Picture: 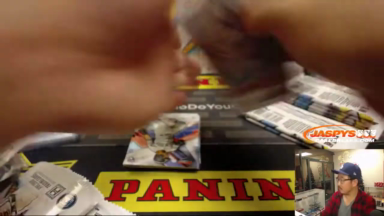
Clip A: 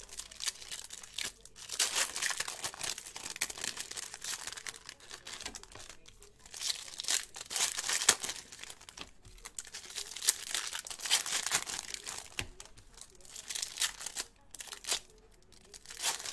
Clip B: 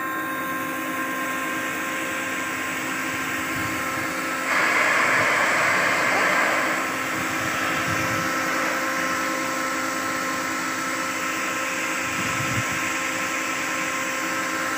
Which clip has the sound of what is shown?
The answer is A